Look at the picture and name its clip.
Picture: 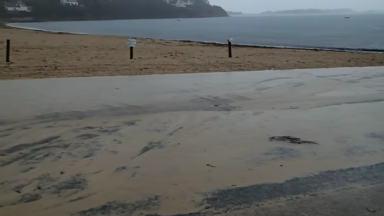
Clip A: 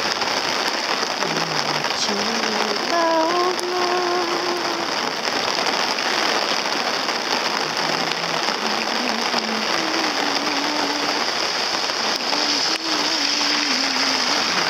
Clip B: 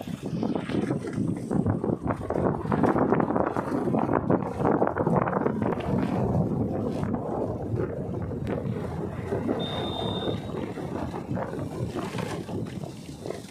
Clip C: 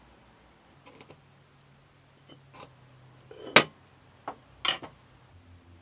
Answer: A